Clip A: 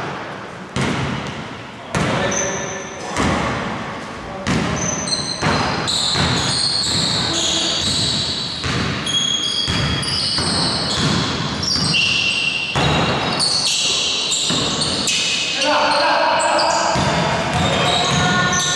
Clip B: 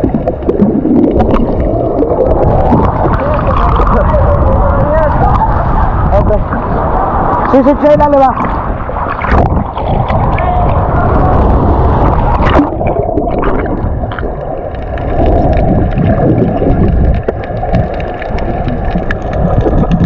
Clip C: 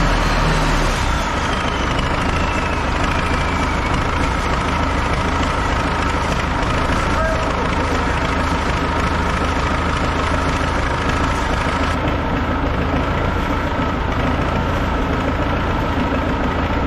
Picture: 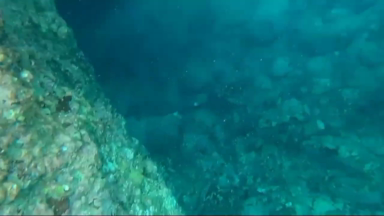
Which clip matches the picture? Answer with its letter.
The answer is B